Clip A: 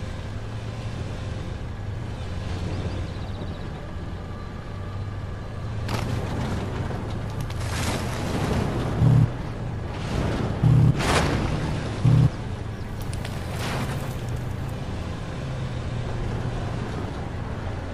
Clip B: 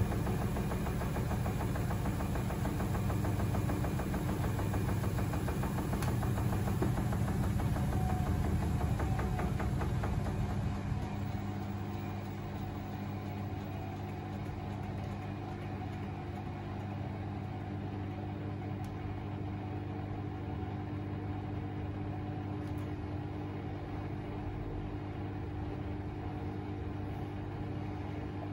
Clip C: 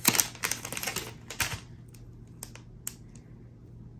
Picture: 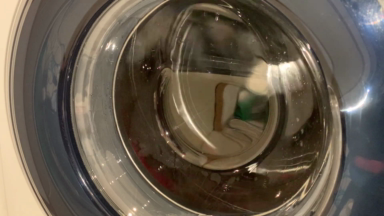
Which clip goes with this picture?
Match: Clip B